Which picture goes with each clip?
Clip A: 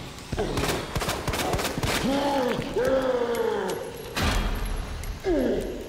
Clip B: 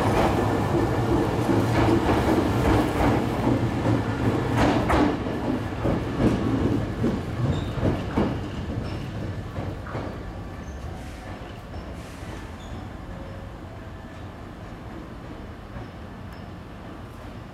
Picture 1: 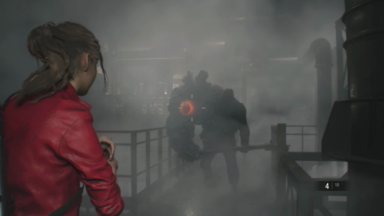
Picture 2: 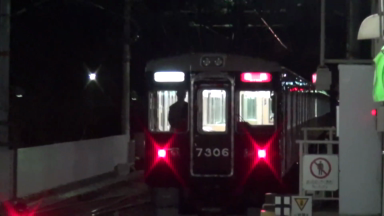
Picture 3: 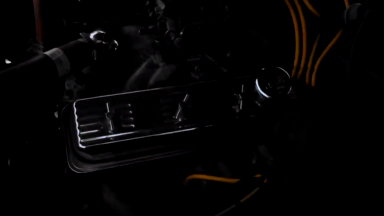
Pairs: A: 1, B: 2